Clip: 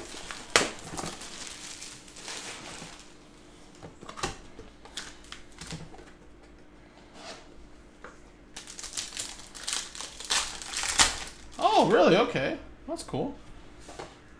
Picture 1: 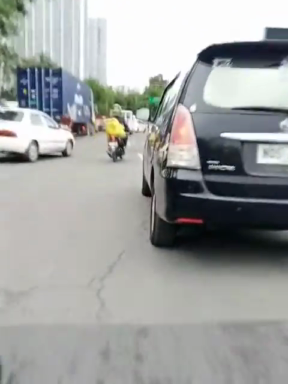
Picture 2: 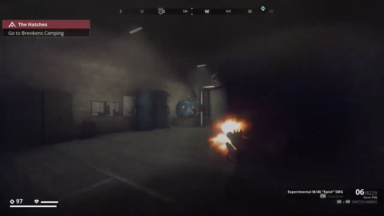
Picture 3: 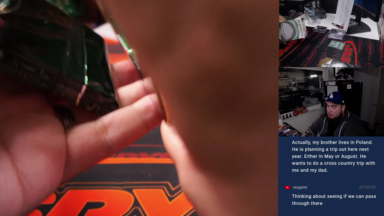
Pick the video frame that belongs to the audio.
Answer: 3